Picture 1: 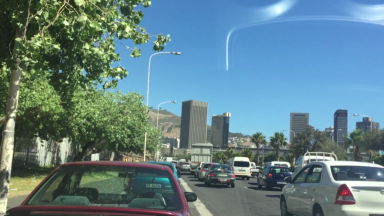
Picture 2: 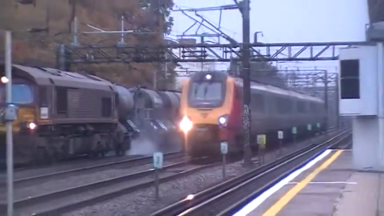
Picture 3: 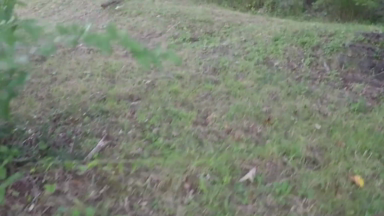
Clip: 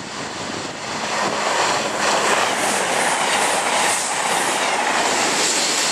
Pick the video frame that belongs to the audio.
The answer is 2